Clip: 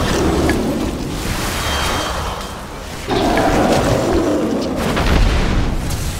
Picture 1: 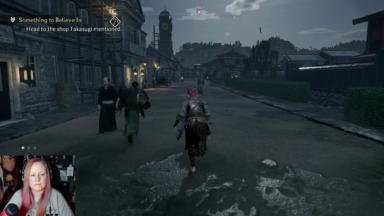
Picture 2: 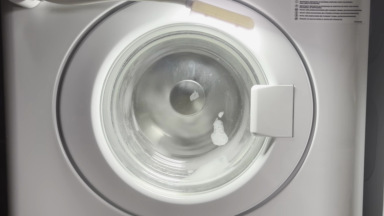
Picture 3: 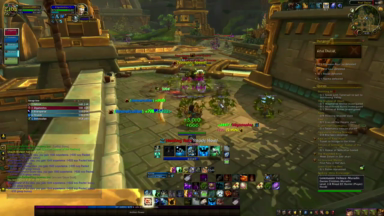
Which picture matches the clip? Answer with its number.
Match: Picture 3